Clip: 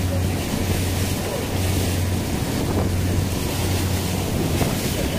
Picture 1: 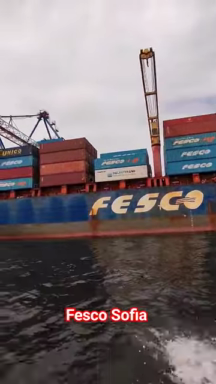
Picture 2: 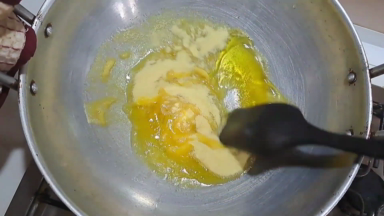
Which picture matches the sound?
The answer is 1